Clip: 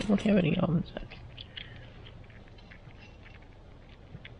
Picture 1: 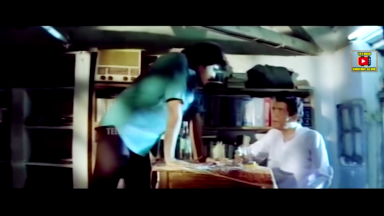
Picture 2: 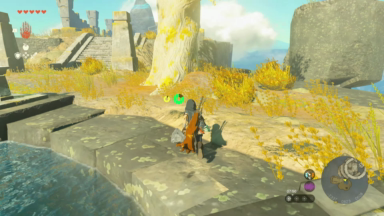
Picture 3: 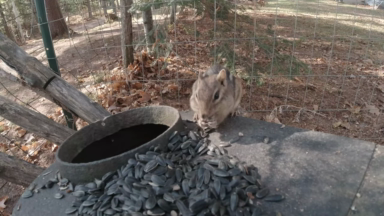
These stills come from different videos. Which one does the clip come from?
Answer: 3